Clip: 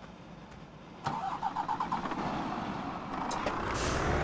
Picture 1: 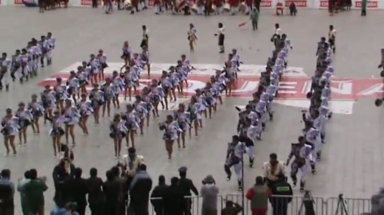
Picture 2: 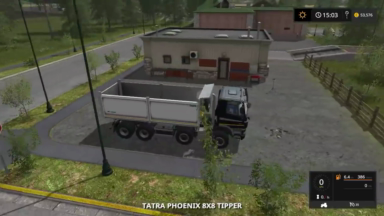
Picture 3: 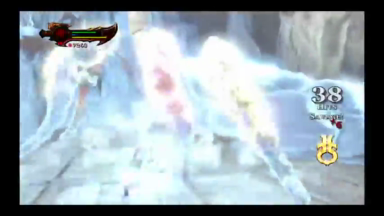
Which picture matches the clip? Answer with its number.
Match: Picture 2